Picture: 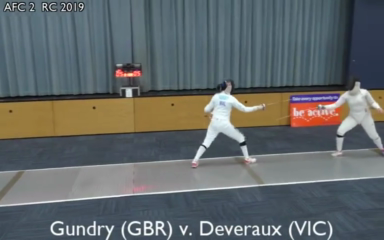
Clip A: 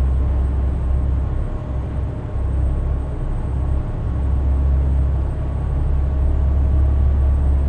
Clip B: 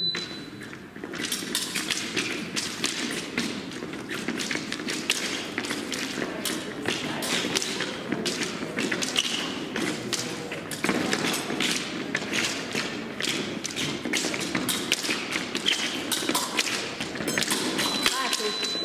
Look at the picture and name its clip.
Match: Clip B